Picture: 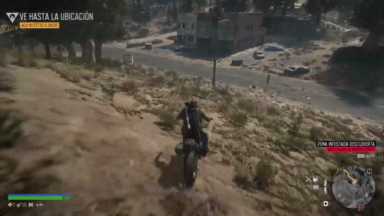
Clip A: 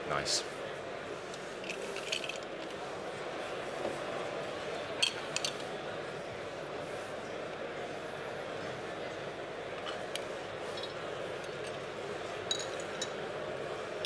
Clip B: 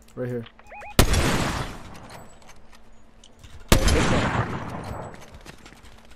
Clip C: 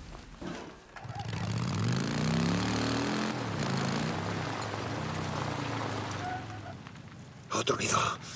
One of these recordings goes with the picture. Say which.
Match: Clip C